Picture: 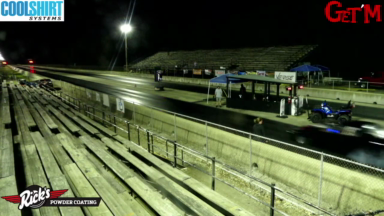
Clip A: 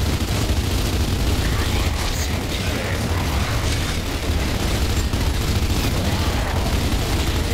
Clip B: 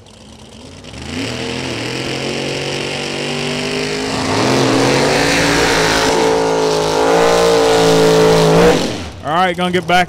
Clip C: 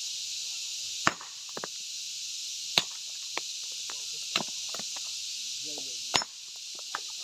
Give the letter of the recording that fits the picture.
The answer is B